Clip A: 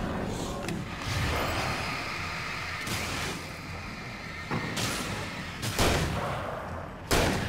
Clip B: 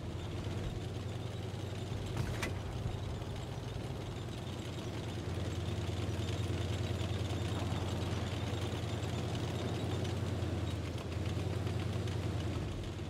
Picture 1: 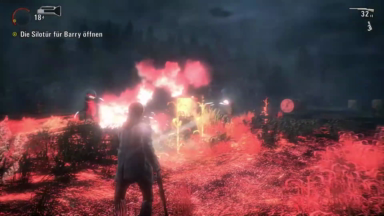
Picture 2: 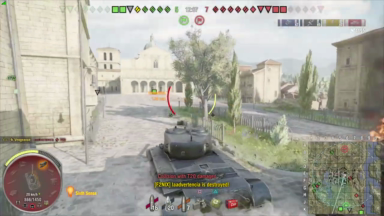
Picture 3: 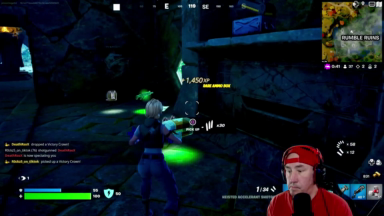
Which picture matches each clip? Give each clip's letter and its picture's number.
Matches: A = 1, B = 2